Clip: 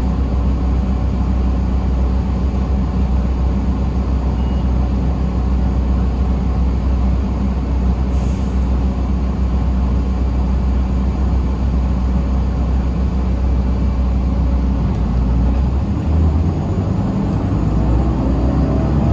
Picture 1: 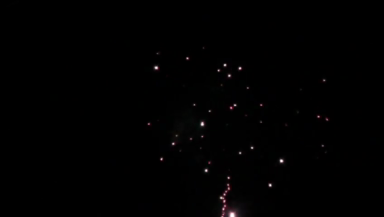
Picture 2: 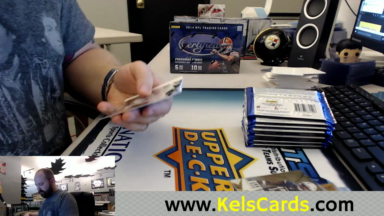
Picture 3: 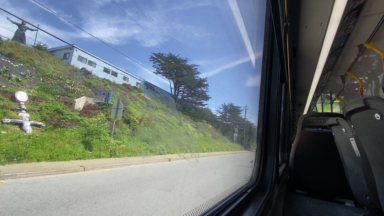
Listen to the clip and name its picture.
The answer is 3